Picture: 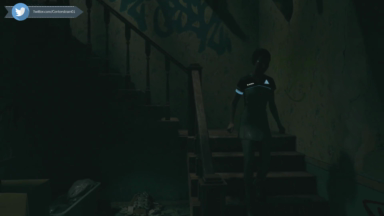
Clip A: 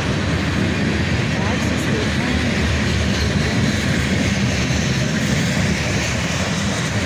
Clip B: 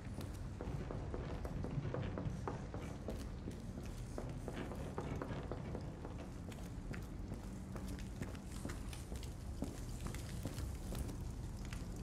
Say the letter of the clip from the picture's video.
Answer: B